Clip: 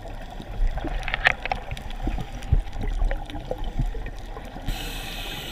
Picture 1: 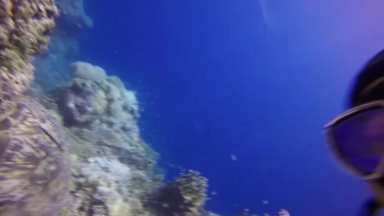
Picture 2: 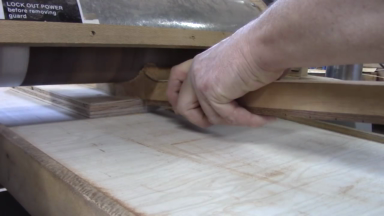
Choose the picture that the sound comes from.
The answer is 1